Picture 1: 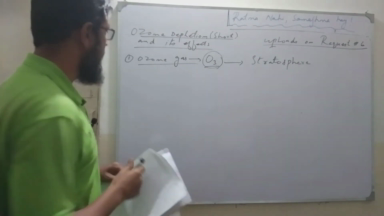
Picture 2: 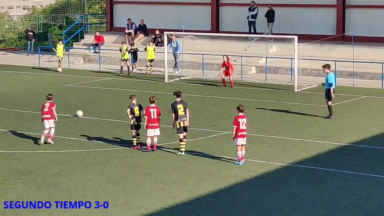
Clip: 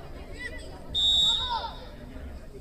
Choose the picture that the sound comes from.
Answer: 2